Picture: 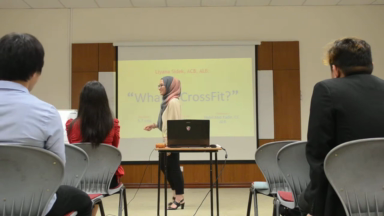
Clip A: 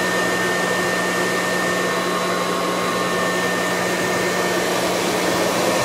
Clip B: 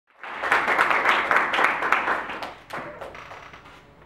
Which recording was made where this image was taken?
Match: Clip B